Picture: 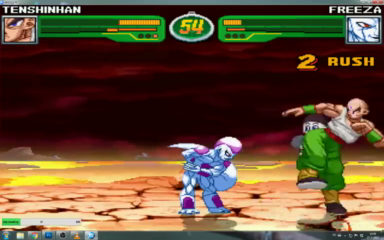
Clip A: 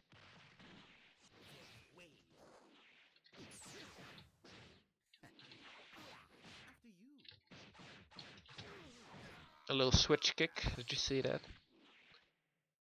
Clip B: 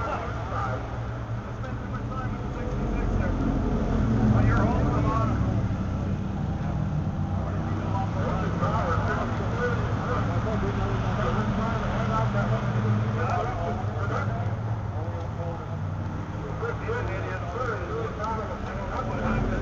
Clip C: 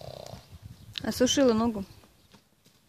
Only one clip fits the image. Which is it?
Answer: A